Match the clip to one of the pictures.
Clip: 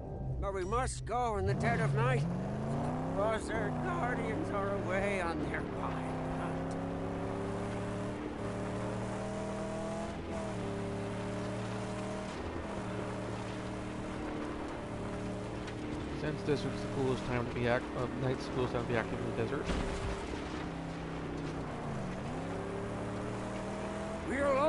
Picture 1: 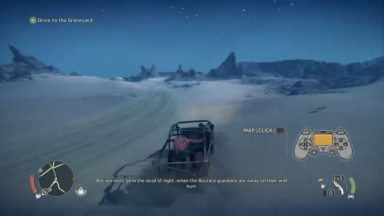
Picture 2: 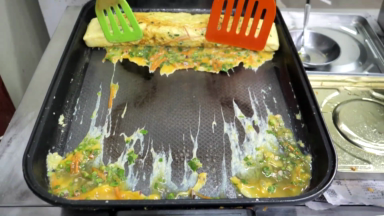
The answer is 1